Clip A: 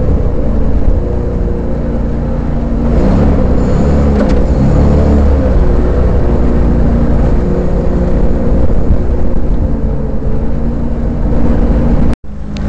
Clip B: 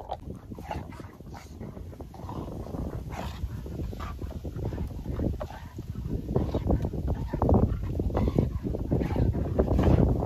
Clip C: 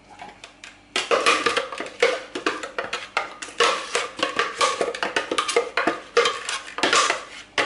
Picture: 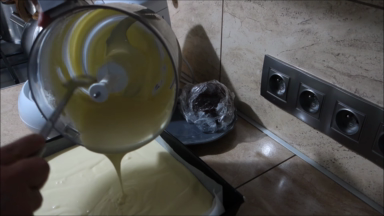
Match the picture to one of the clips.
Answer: C